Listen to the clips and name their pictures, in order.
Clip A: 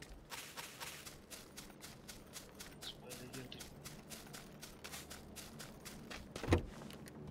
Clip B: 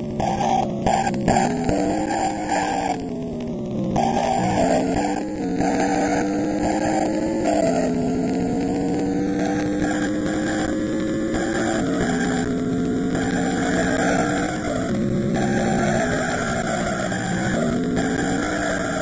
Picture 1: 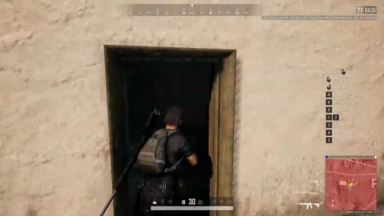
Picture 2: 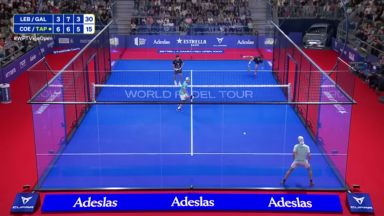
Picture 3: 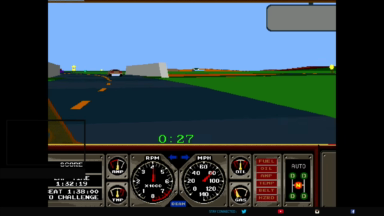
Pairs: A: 1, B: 3